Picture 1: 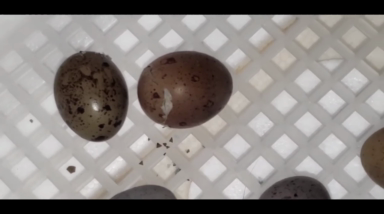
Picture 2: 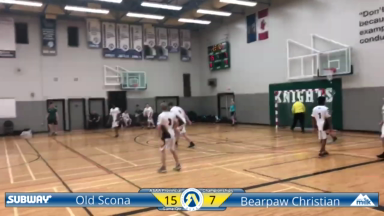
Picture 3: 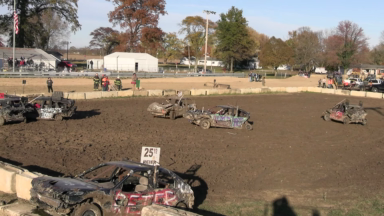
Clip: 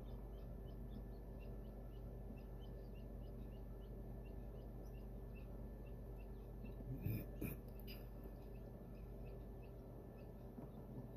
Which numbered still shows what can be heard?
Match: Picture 1